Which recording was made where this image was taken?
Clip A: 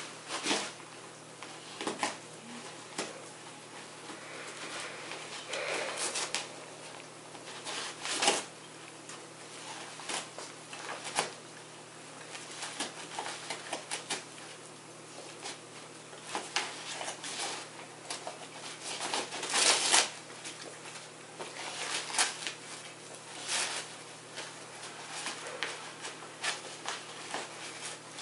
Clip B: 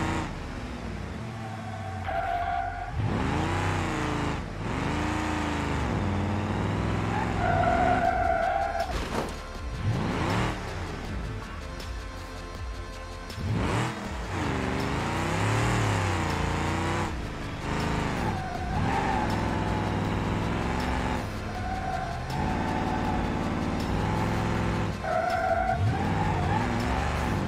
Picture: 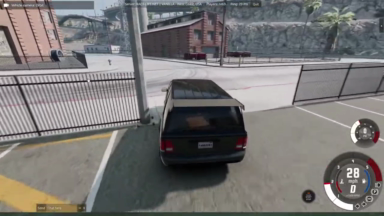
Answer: B